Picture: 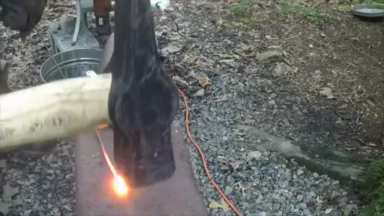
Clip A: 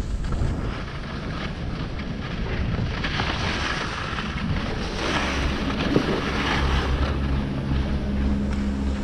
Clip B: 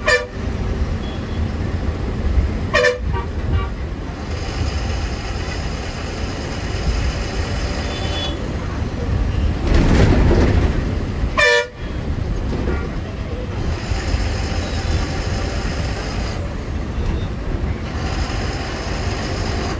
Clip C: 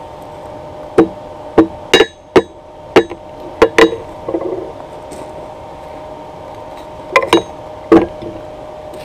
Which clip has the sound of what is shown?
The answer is C